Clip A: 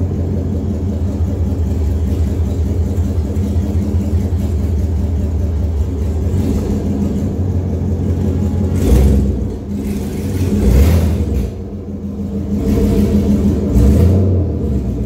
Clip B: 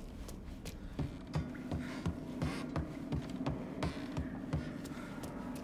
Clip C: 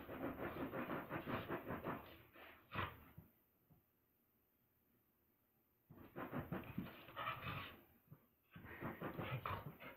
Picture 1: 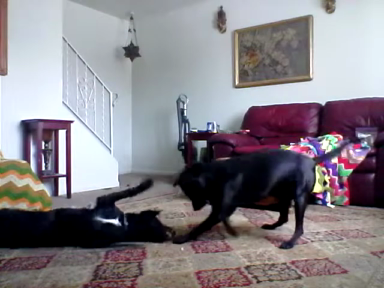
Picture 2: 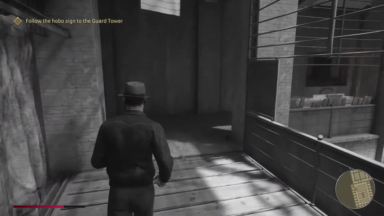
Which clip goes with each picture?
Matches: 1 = C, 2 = B